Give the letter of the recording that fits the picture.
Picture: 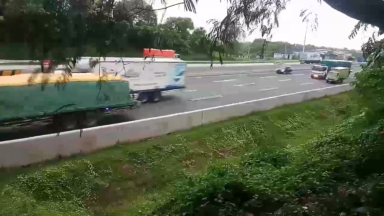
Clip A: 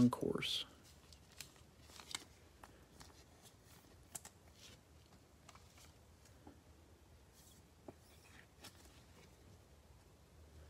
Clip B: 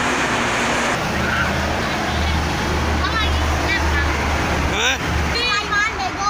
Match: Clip B